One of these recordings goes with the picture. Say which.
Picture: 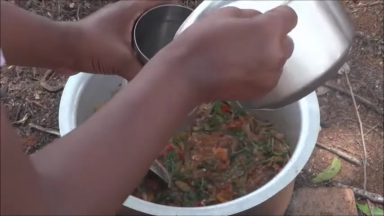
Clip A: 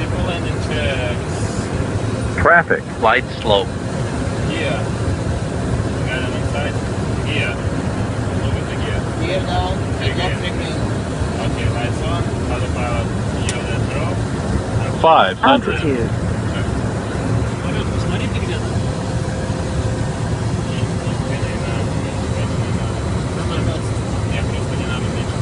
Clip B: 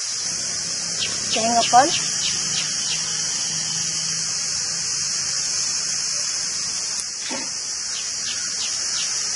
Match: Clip B